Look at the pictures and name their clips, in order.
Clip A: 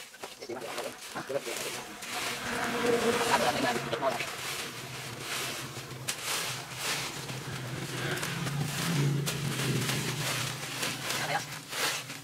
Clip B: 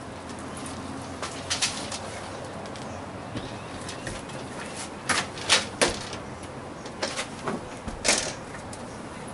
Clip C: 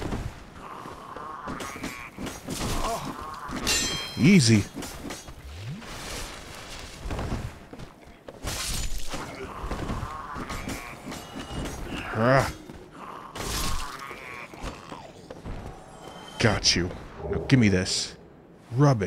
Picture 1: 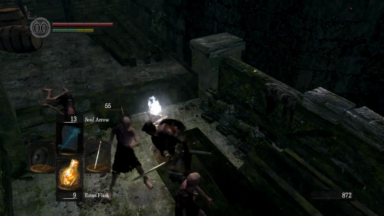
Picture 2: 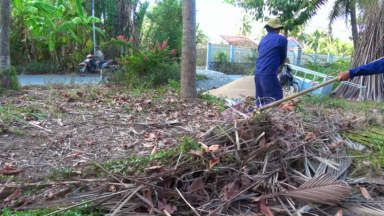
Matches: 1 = C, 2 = A